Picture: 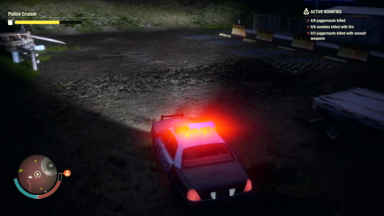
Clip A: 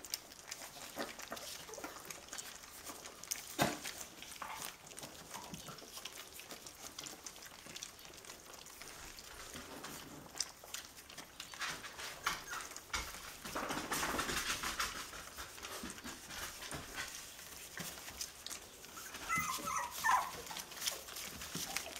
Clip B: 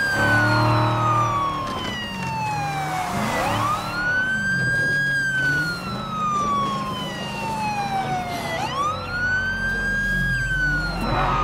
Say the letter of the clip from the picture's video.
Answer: B